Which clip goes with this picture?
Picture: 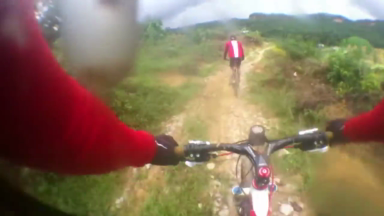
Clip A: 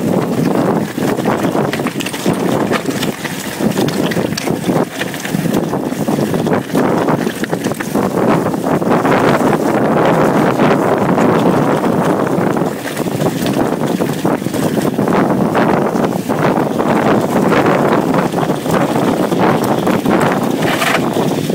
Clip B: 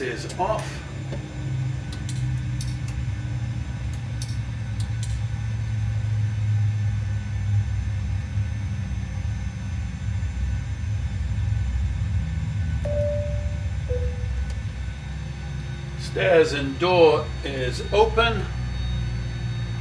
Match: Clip A